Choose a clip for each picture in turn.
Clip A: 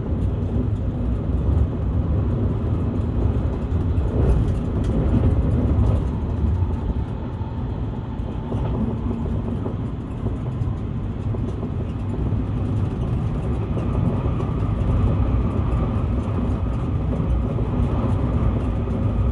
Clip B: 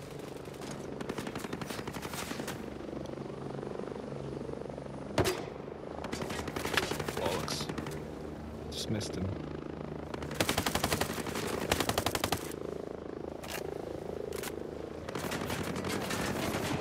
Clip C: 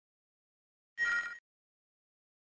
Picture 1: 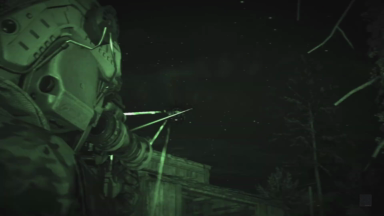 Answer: B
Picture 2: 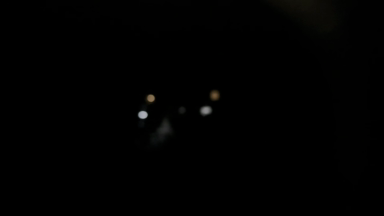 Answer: A